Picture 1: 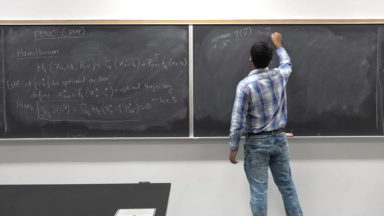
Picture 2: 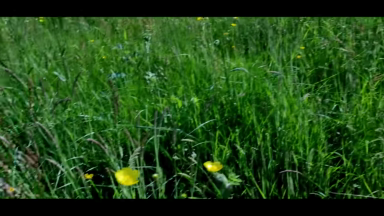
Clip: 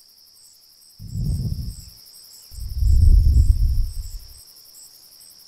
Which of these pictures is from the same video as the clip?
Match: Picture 2